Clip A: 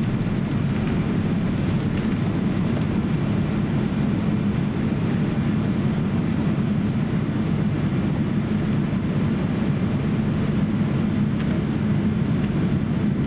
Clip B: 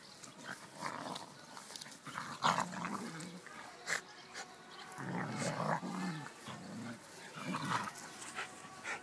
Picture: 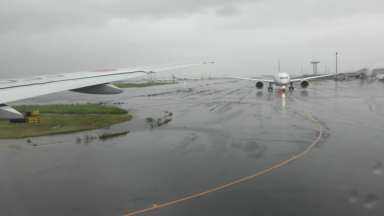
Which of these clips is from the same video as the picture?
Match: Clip A